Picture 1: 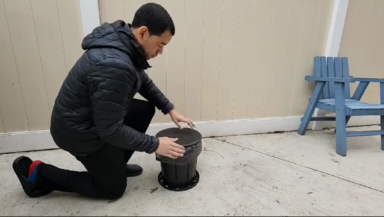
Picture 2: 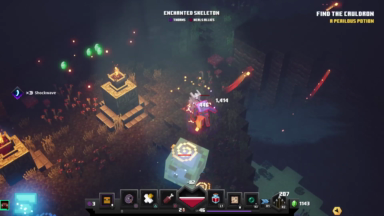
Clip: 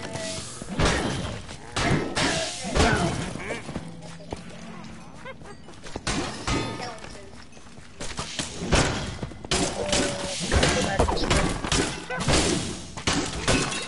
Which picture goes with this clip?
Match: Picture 2